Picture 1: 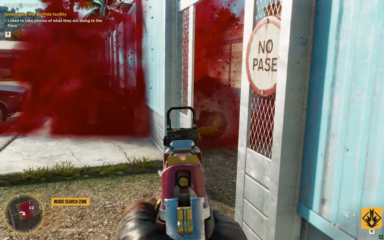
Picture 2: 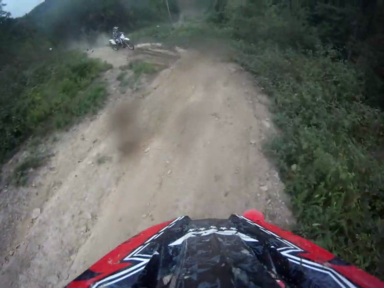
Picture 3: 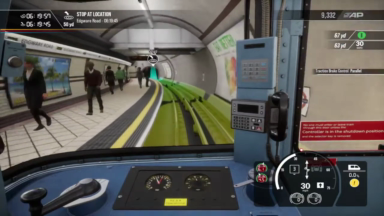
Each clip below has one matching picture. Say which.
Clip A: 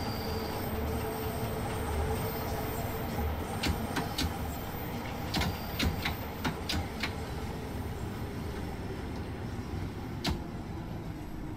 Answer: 3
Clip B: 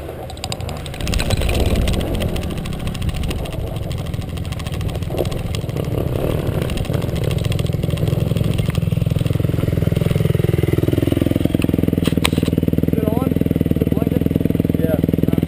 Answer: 2